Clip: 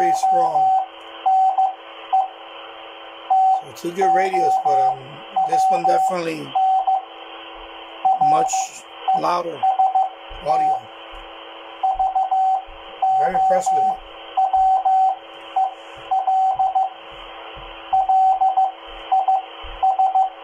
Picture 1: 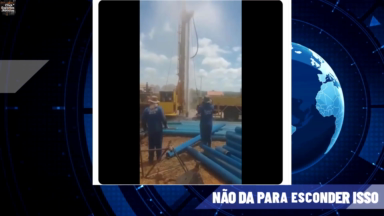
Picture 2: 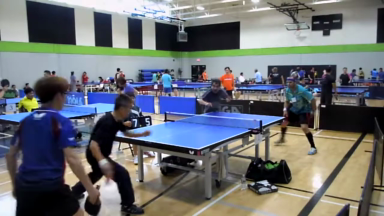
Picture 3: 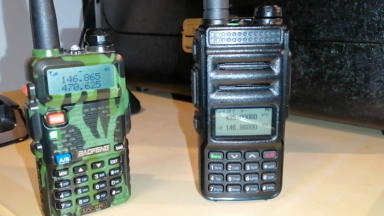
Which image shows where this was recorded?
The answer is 3